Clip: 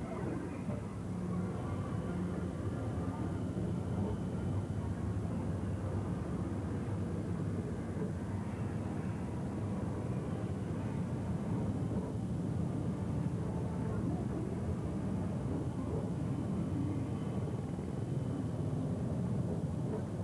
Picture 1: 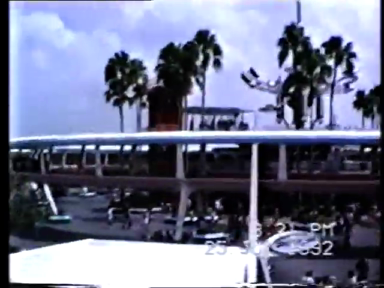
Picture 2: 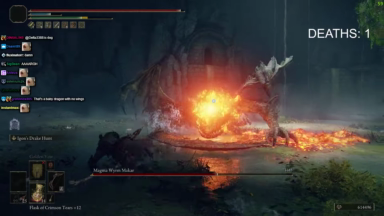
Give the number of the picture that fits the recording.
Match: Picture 1